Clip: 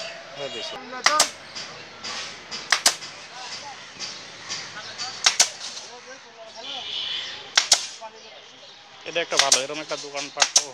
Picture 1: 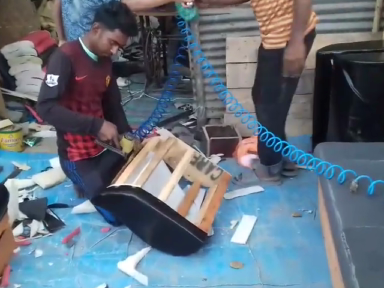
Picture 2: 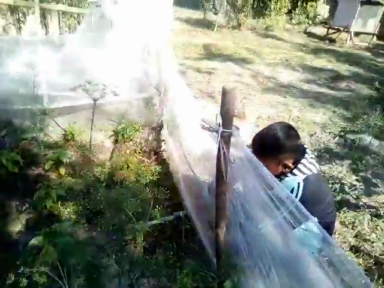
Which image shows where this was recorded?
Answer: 1